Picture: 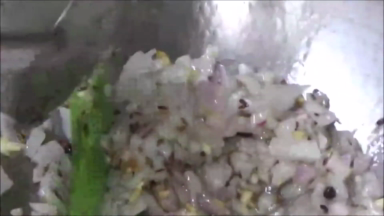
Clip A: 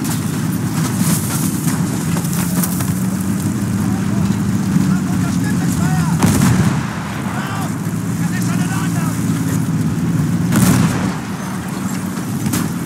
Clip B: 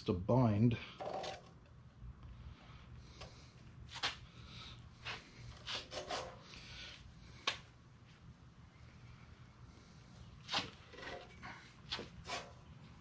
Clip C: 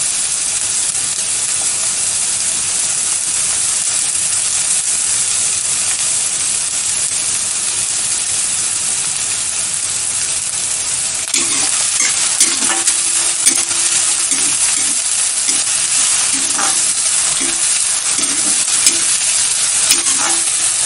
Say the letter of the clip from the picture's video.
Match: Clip C